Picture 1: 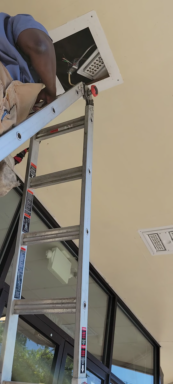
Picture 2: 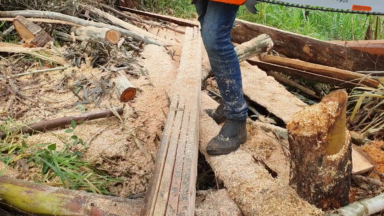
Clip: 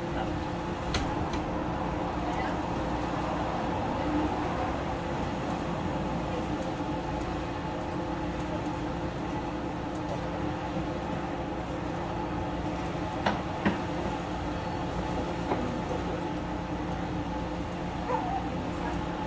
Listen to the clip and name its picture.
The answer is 1